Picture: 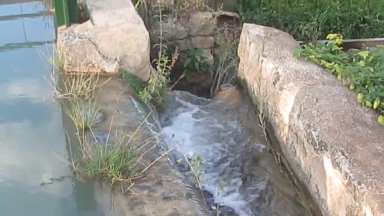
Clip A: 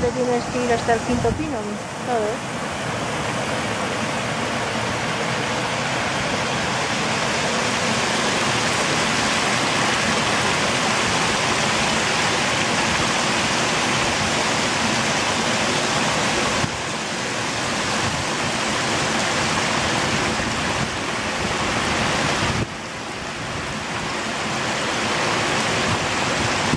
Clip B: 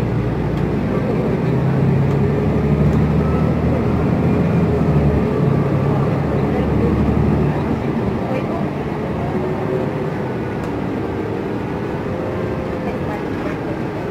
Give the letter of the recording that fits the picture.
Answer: A